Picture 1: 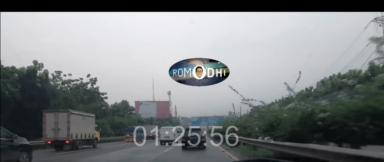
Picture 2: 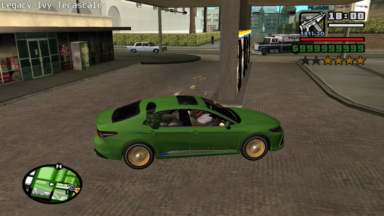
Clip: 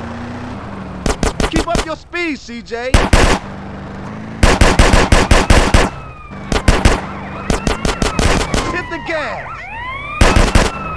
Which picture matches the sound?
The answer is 2